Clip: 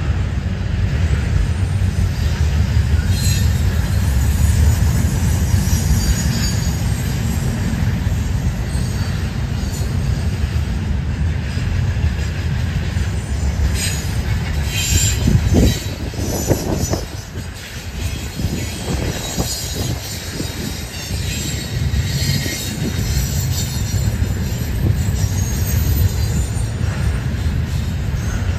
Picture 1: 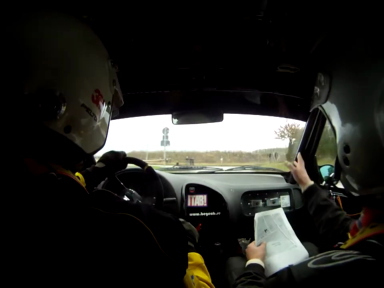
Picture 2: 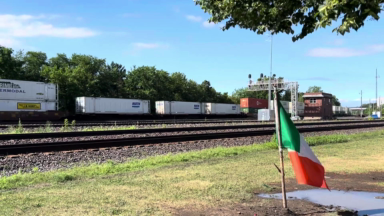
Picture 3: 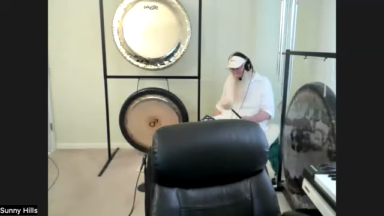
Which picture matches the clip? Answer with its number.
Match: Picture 2